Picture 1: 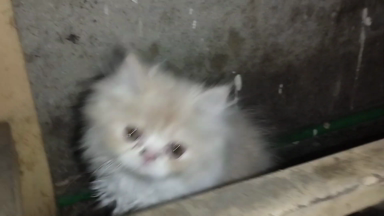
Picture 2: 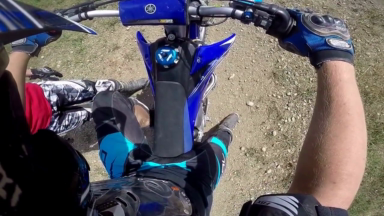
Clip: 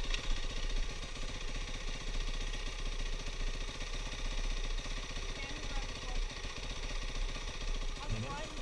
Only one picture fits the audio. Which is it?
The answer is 2